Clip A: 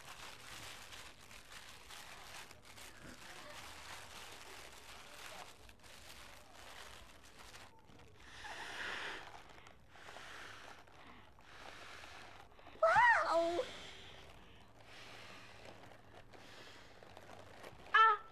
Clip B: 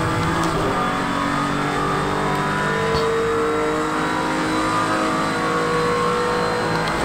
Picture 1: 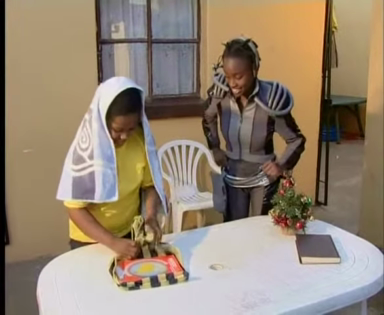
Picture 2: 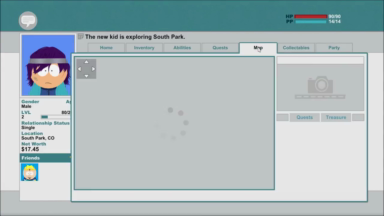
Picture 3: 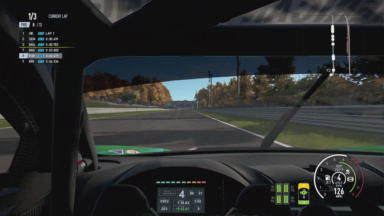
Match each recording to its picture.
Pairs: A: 1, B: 3